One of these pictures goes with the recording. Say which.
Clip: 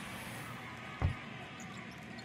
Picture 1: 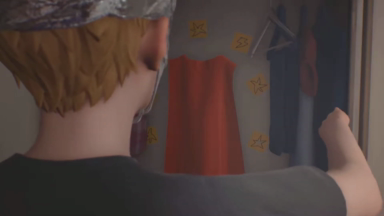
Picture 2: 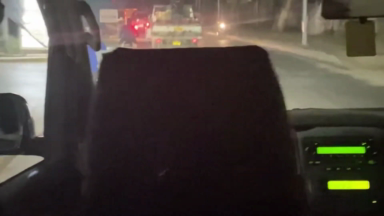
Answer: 1